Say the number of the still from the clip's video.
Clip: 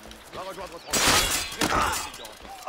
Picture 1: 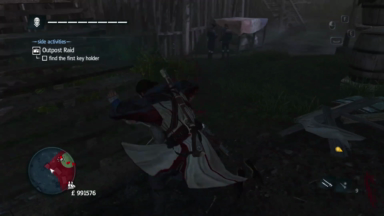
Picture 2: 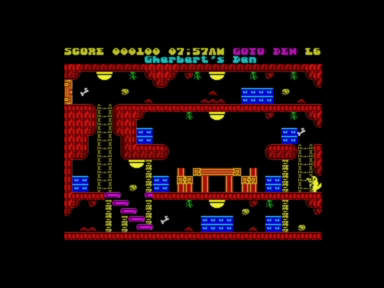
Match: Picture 1